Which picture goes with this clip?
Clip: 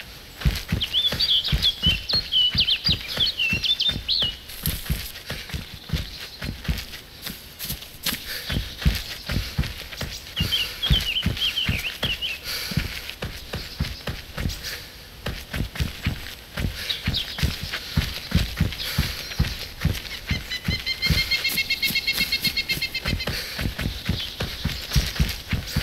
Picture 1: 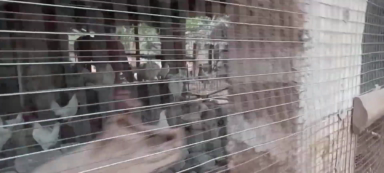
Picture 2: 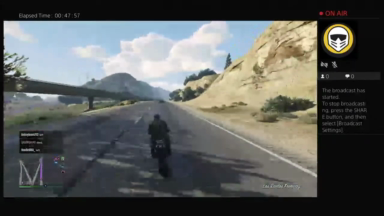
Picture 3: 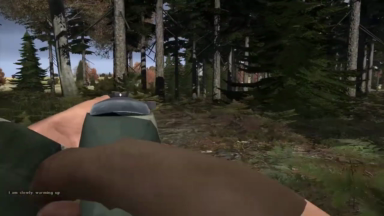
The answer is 3